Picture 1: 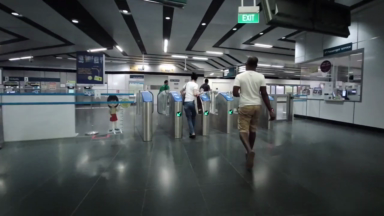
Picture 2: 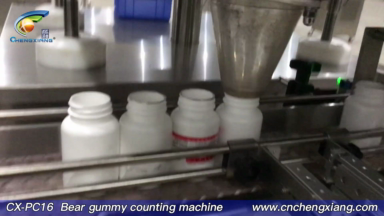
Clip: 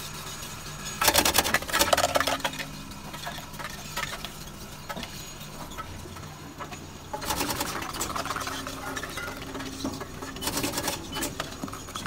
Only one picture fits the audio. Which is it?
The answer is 2